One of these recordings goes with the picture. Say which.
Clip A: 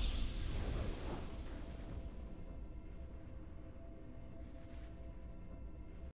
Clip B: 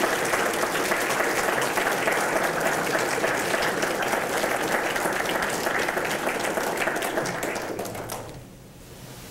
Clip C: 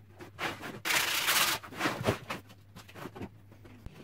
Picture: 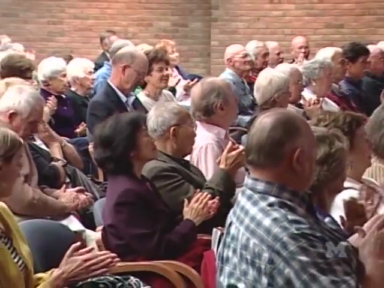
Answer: B